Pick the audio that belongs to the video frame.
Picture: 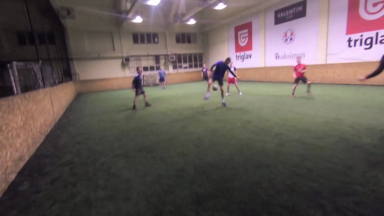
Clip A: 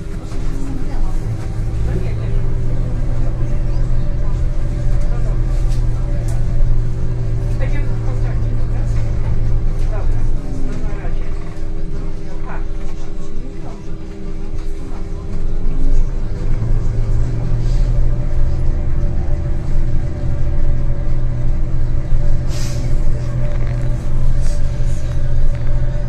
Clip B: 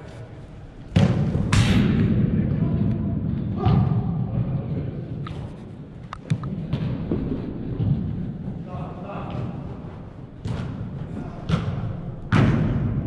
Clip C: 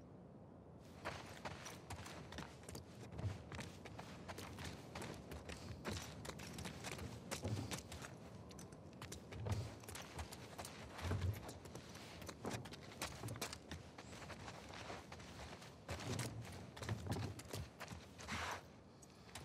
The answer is B